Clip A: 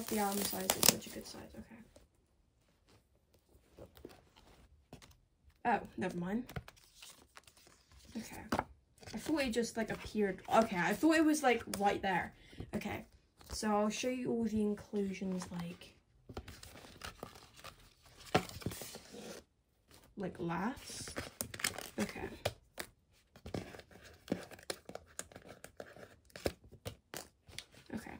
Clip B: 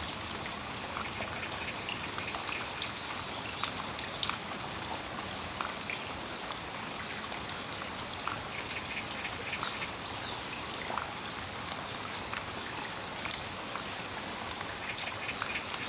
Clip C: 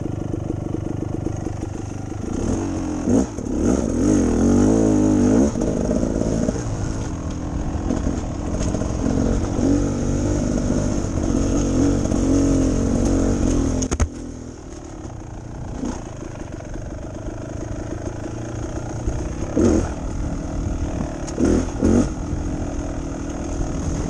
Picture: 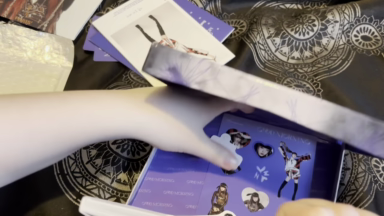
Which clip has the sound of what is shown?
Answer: A